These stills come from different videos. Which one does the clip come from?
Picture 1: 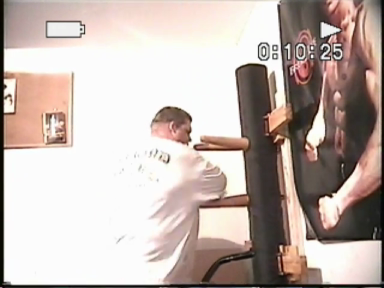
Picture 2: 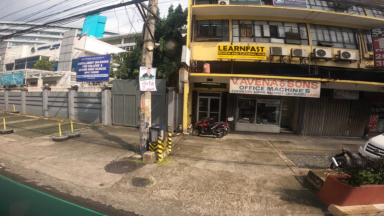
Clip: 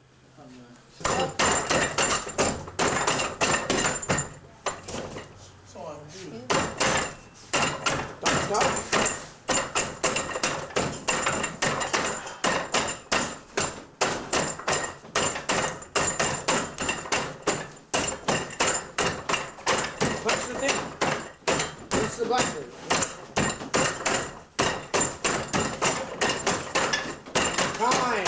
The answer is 1